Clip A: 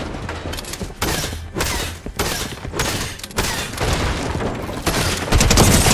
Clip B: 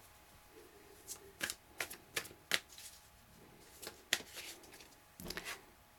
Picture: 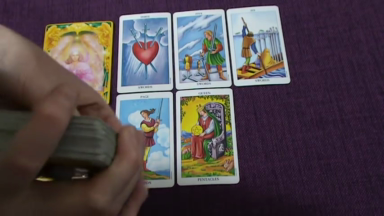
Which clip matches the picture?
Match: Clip B